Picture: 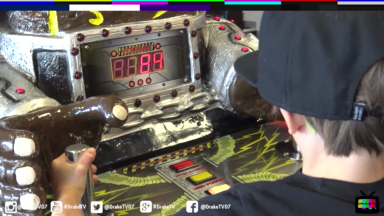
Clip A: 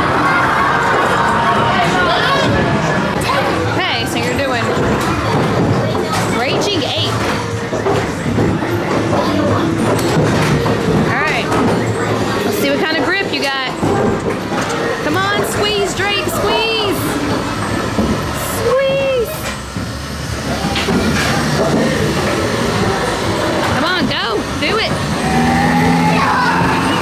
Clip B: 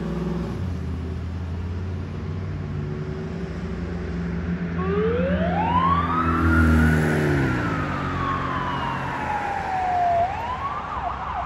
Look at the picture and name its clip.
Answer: A